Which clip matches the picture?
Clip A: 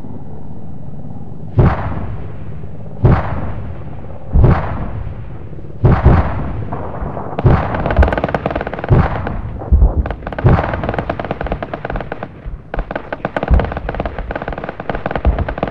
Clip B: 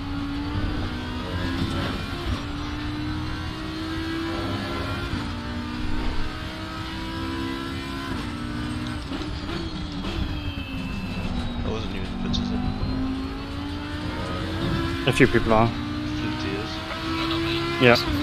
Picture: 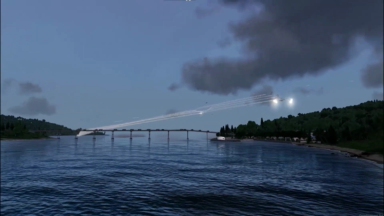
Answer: A